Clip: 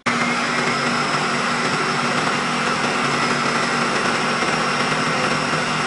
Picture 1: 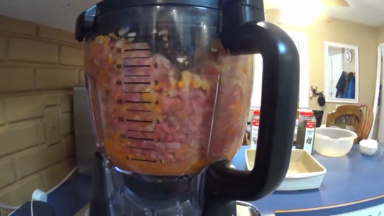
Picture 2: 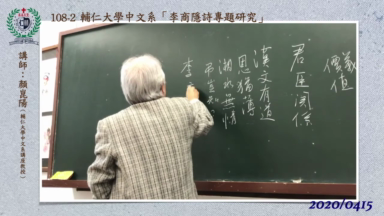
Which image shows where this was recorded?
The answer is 1